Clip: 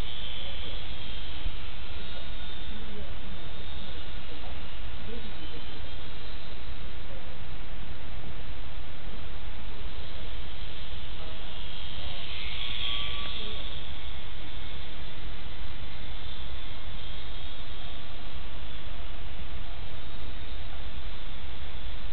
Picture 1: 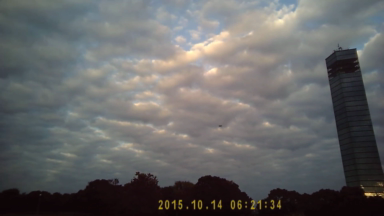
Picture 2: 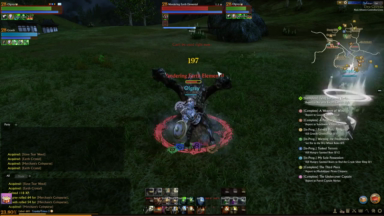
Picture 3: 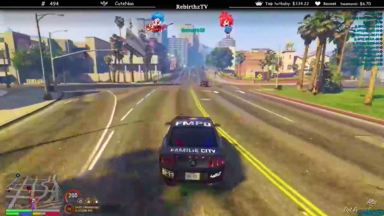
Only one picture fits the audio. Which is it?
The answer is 1